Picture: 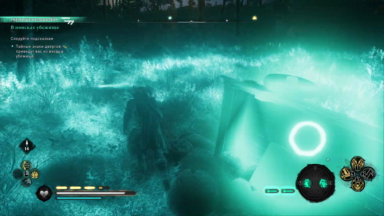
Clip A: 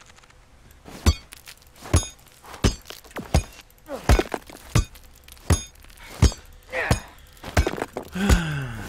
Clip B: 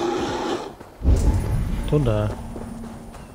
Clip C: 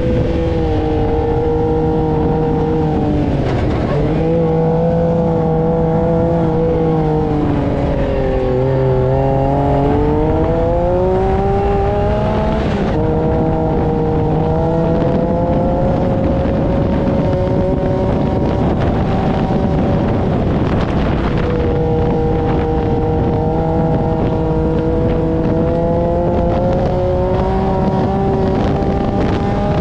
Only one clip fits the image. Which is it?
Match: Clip B